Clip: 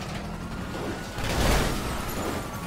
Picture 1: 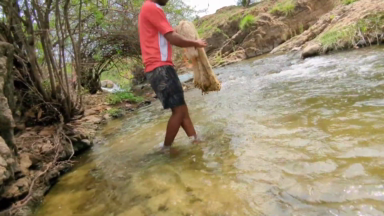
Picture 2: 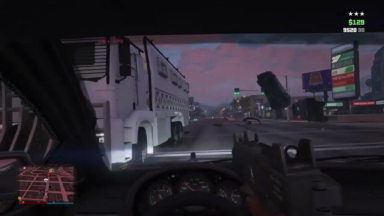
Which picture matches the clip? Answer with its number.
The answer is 2